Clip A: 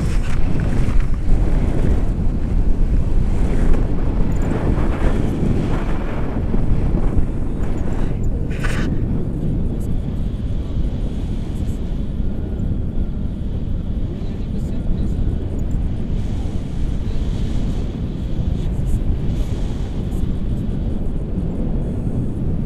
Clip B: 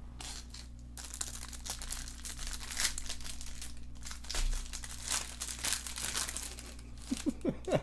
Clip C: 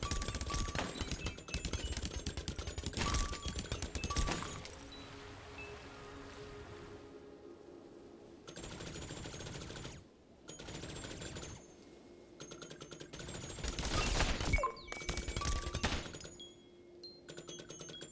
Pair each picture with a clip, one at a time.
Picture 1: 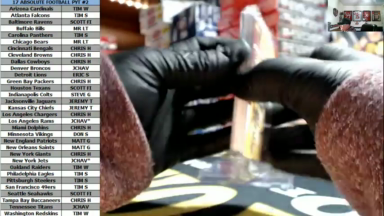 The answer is B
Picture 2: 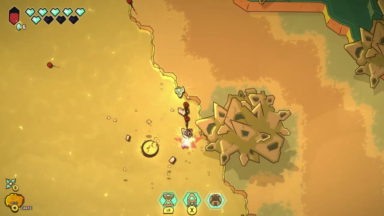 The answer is C